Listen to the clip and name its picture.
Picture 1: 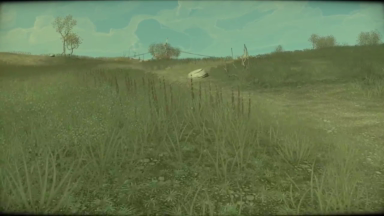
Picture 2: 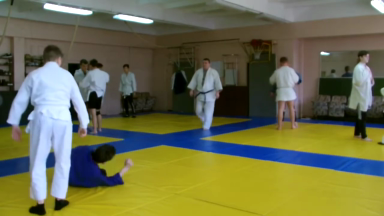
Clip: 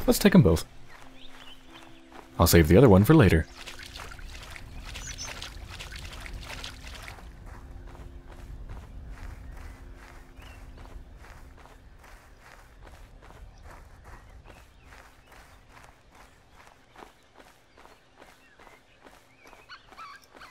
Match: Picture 1